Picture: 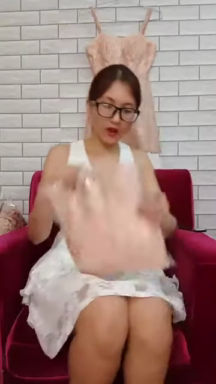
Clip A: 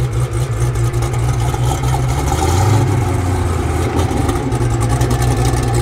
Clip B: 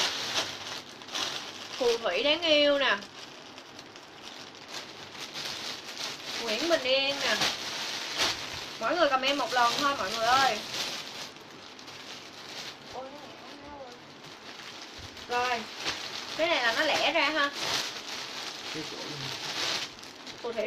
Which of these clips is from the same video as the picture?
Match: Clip B